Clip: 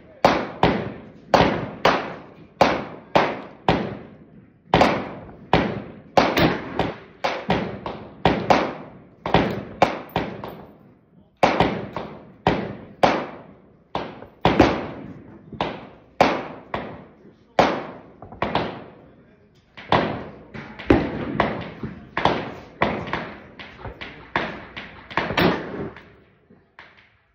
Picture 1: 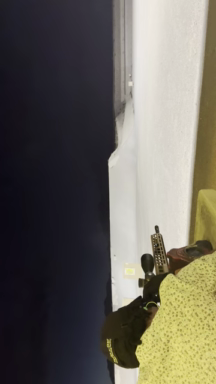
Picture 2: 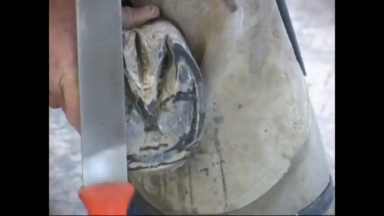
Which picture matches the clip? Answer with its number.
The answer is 1